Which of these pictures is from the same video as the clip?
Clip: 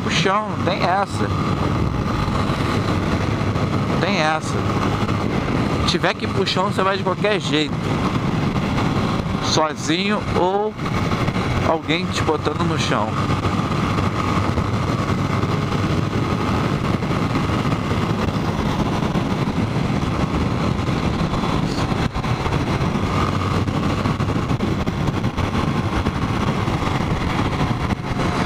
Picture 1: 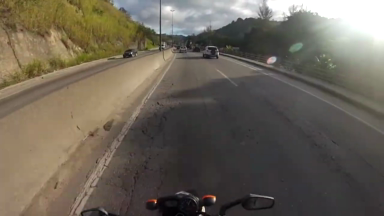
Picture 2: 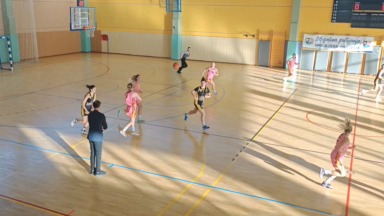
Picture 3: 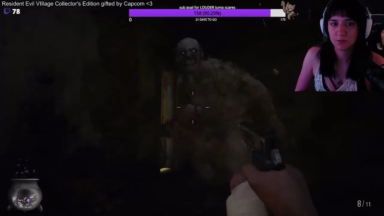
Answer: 1